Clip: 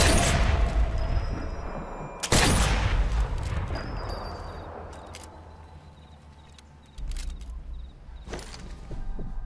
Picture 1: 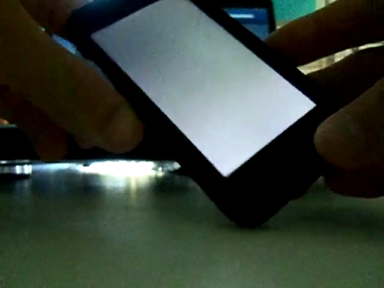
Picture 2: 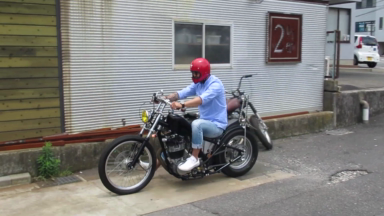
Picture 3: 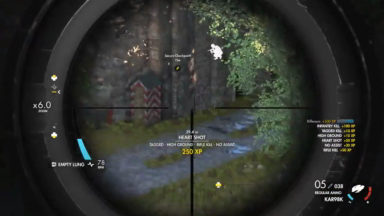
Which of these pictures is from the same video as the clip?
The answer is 3